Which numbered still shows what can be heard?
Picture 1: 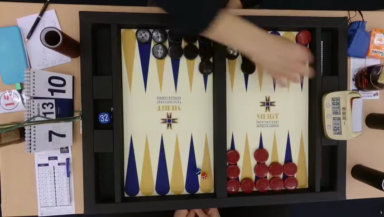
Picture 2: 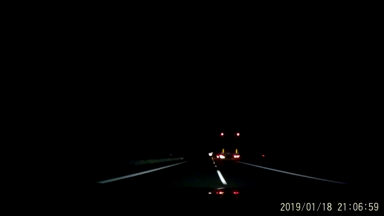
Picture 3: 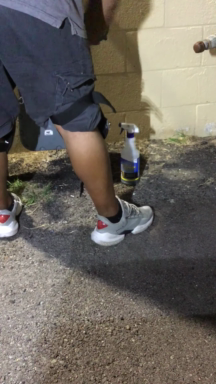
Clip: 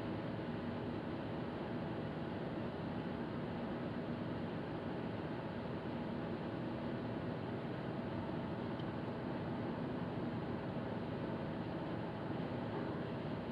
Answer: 2